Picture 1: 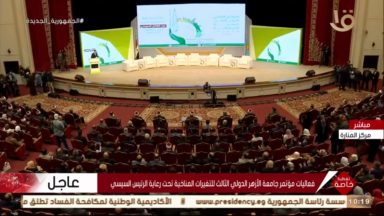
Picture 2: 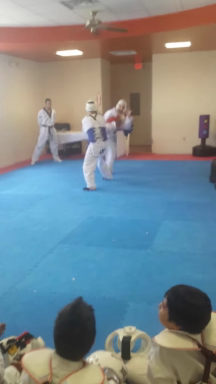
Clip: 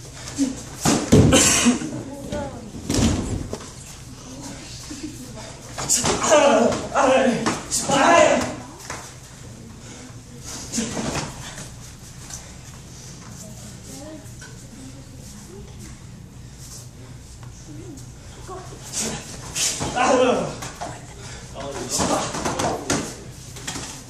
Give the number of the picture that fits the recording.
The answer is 2